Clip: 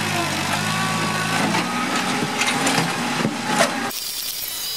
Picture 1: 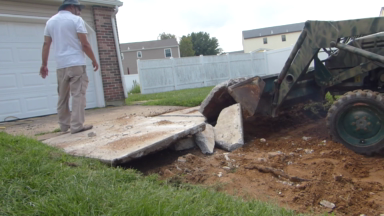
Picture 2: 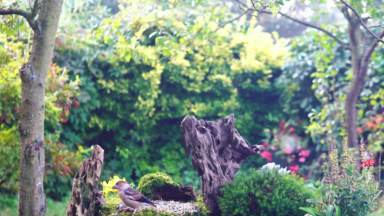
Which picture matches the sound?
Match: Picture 1